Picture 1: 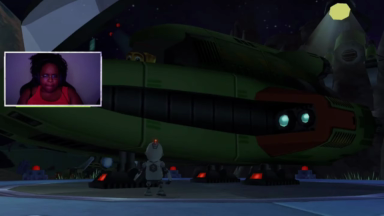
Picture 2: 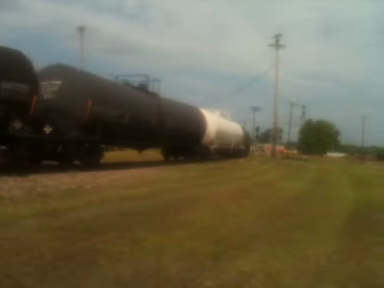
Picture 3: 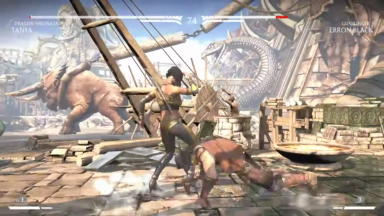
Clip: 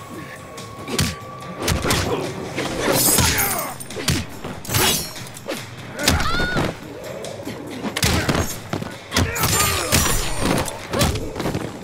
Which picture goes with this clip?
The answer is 3